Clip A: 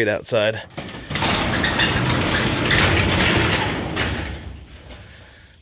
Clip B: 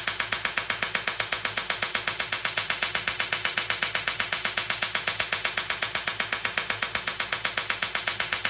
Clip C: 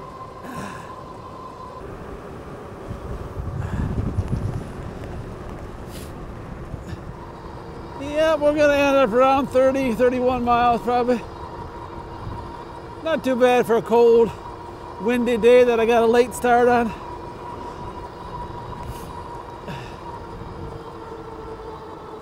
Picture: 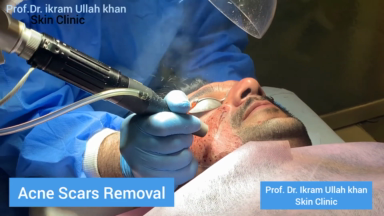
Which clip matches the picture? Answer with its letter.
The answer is B